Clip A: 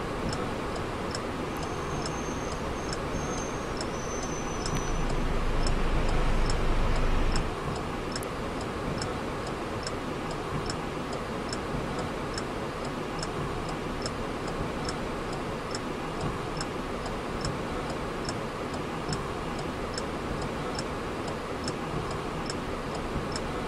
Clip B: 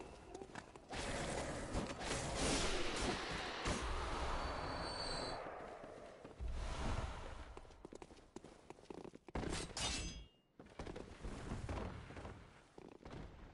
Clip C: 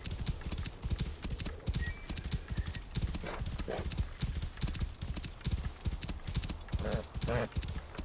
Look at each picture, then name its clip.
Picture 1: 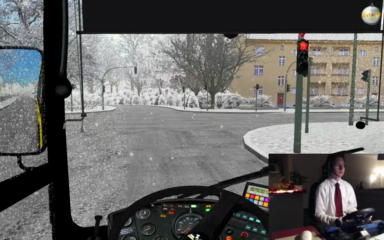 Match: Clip A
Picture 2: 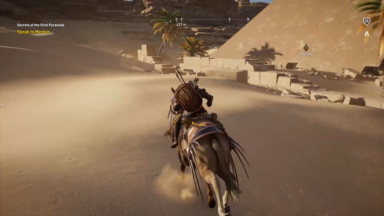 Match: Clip C